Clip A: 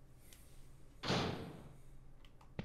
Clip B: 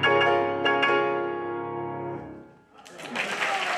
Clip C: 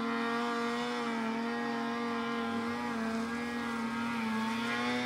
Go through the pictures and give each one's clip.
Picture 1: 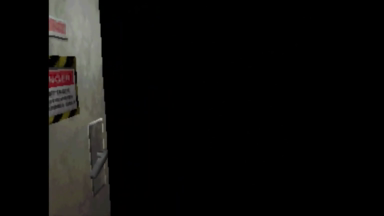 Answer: A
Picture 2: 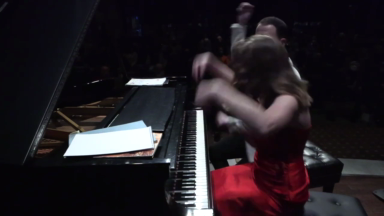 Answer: B